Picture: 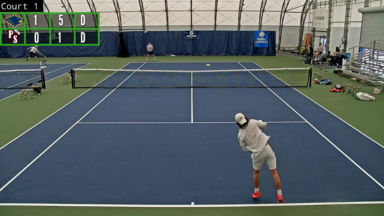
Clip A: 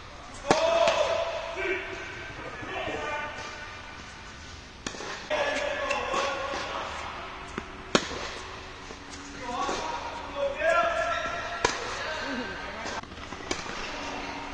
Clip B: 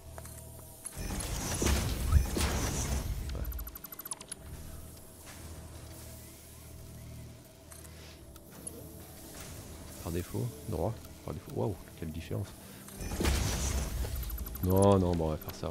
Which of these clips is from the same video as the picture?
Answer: A